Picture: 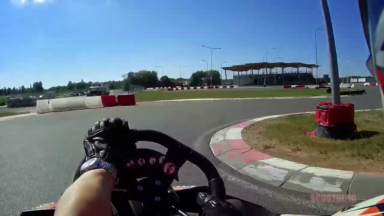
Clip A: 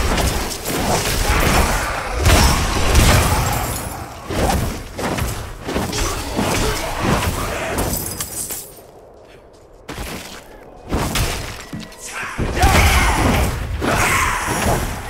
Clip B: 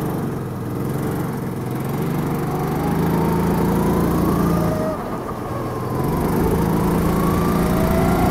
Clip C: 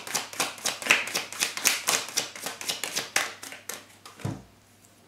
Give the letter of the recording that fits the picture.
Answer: B